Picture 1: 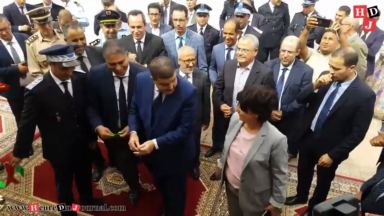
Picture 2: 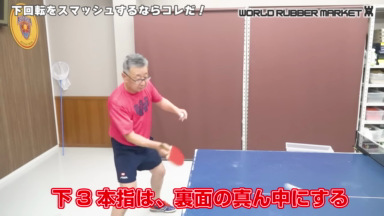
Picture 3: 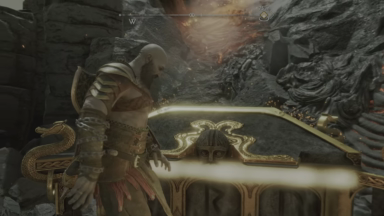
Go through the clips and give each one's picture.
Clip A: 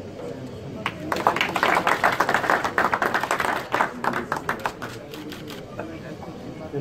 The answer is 1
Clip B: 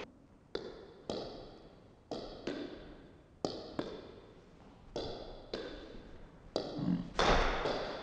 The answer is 2